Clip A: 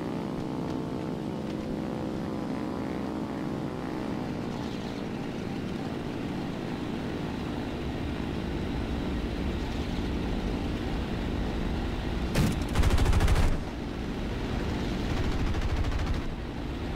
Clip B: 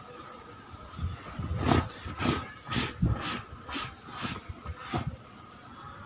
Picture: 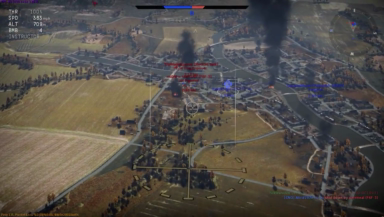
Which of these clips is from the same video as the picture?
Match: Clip A